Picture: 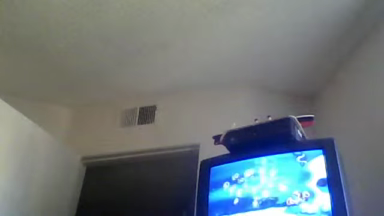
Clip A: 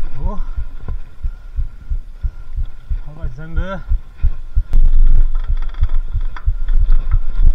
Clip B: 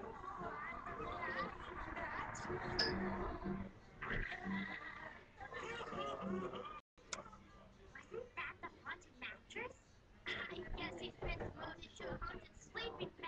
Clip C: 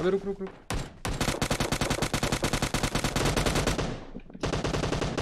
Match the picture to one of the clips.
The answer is B